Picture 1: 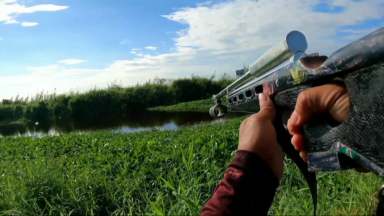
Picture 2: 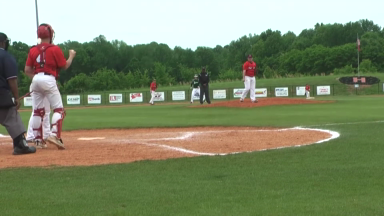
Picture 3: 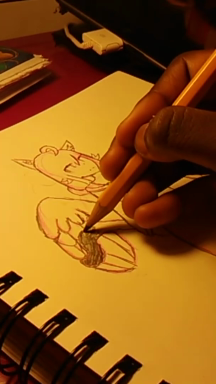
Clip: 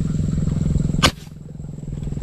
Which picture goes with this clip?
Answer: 1